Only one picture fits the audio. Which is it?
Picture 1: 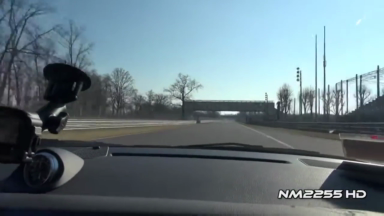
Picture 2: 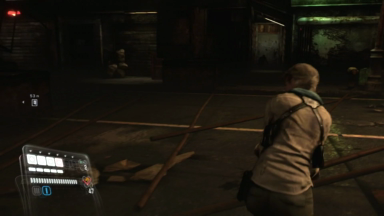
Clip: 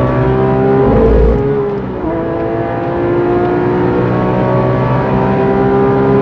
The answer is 1